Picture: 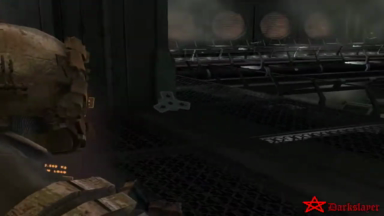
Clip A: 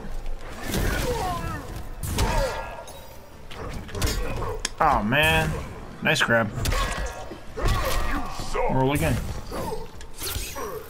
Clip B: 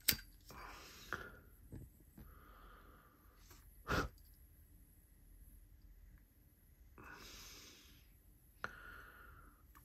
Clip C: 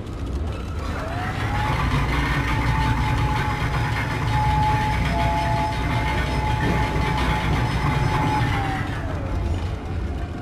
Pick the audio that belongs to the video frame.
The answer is C